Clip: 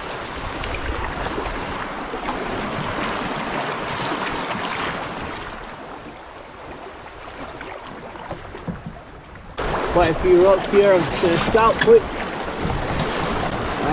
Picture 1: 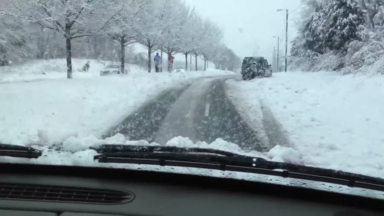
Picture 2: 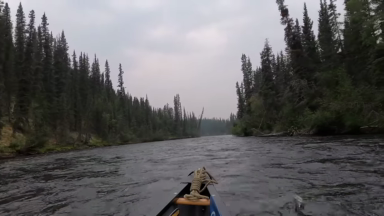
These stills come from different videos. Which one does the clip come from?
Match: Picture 2